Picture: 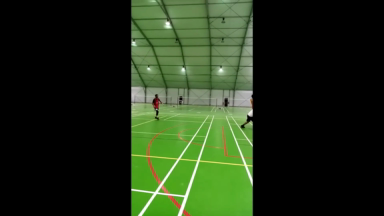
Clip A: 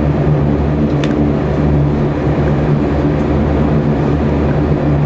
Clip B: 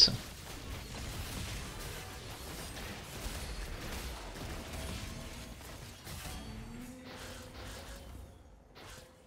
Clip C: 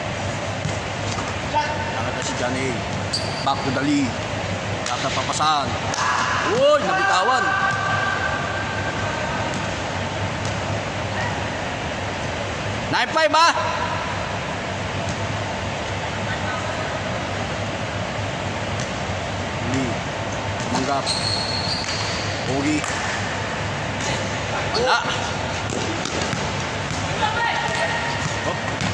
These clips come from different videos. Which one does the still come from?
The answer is C